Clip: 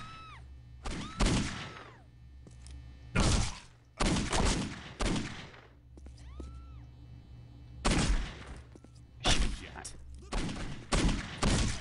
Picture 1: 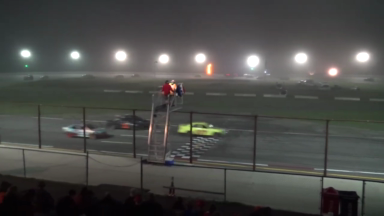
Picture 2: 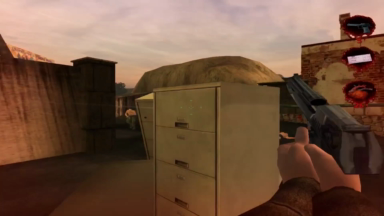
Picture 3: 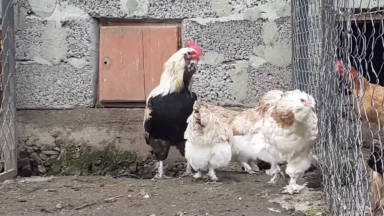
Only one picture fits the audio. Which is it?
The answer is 2